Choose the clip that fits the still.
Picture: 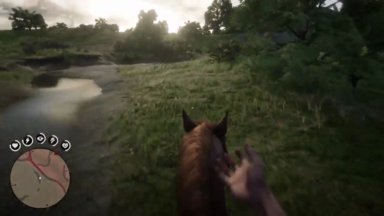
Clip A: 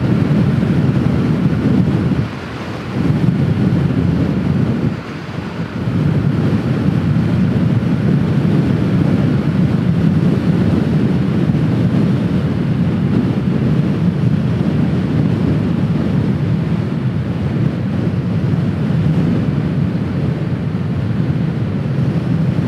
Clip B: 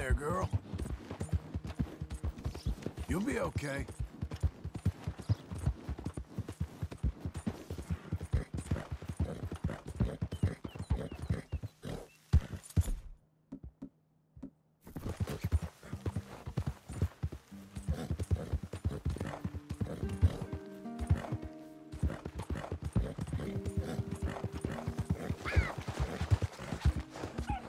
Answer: B